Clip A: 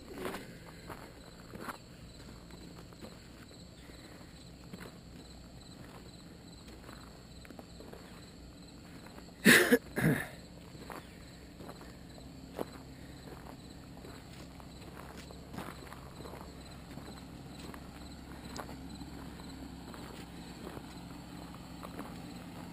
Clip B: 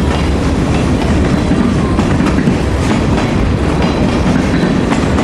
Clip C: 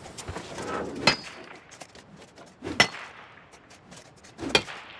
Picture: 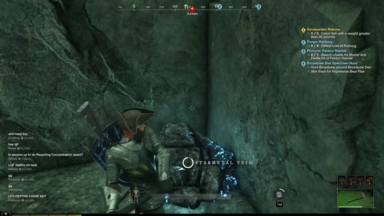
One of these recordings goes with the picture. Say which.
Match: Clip C